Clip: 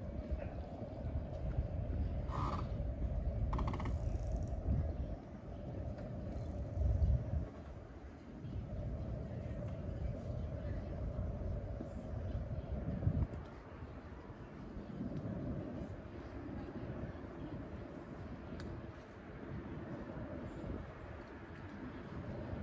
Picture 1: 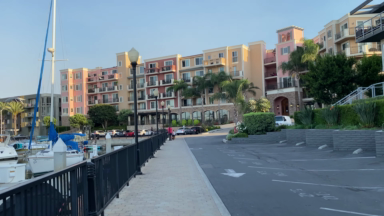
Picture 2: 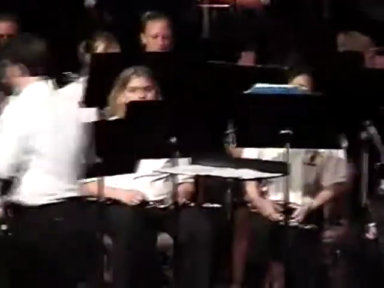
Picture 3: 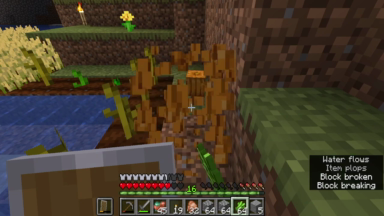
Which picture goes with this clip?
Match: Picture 1